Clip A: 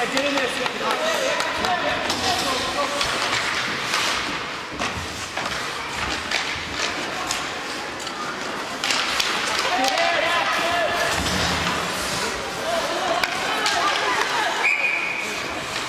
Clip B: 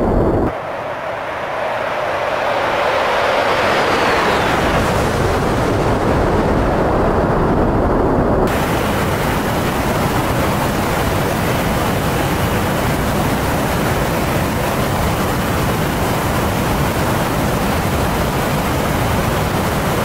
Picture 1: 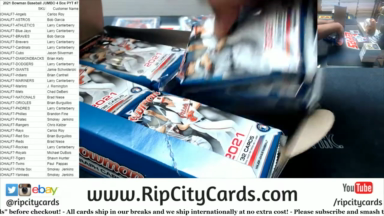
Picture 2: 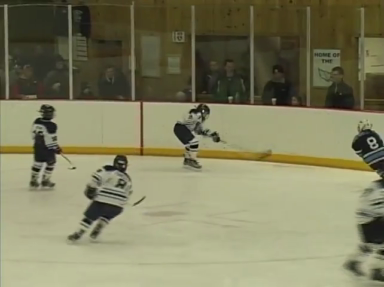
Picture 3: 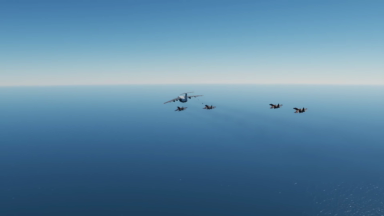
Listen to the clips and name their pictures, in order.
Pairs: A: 2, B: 3